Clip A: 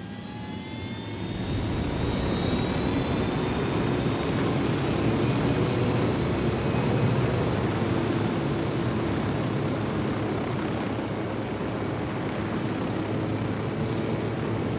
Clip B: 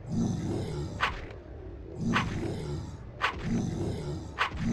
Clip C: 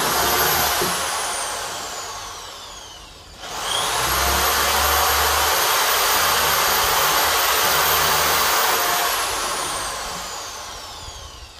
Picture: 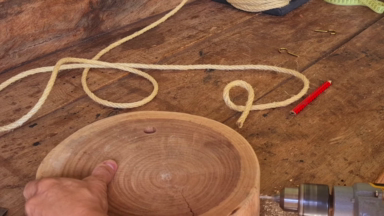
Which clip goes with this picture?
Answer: C